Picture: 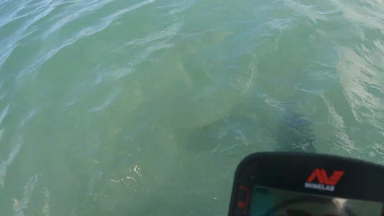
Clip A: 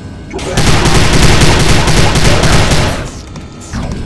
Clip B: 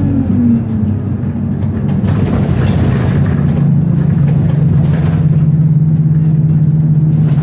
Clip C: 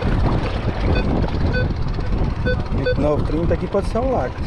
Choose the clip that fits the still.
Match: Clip C